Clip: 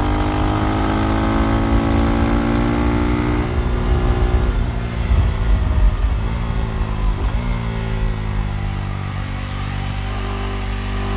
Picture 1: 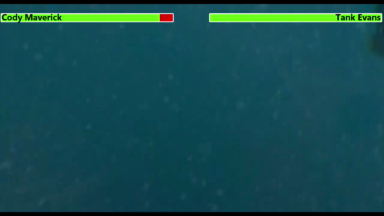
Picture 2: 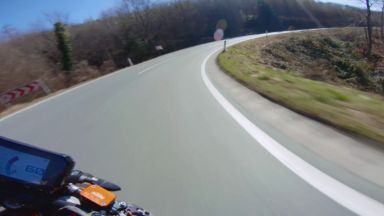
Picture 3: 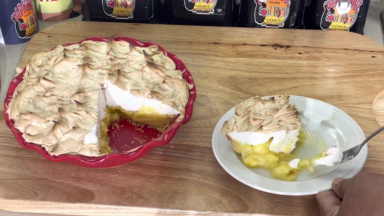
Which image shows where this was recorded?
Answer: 2